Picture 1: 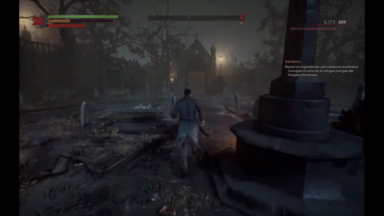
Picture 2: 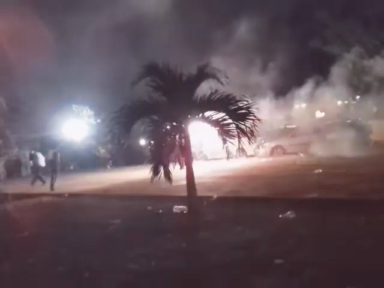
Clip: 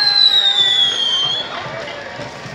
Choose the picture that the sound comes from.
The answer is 2